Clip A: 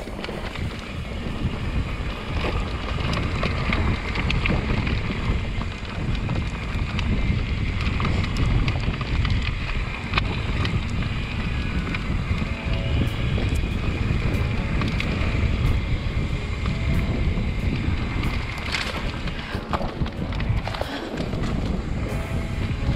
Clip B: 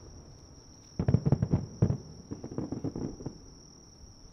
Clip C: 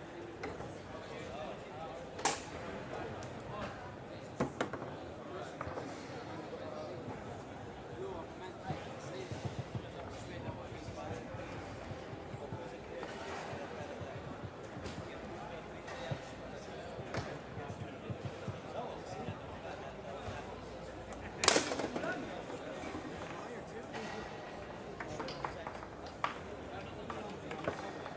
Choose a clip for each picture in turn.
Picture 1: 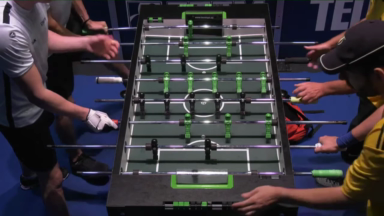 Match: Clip C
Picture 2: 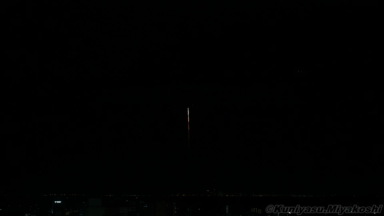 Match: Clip B